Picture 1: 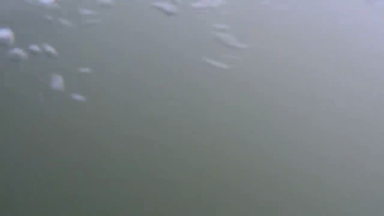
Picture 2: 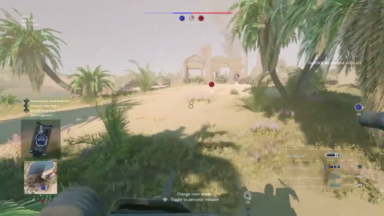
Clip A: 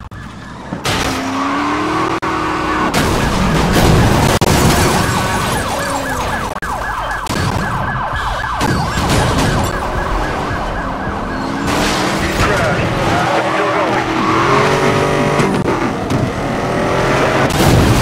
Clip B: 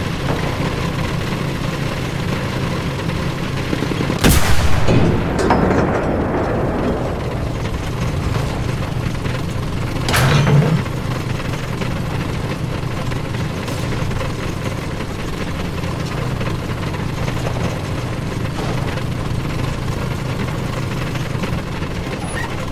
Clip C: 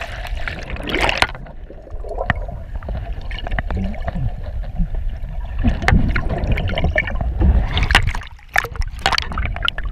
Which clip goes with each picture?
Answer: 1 C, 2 B